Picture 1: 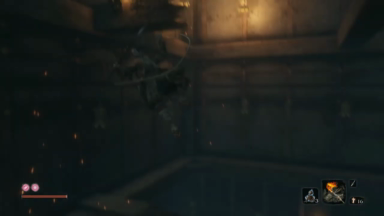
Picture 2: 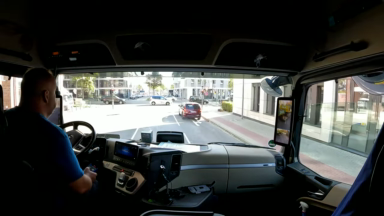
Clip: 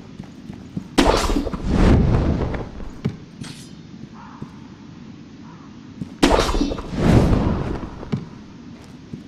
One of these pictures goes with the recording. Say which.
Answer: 1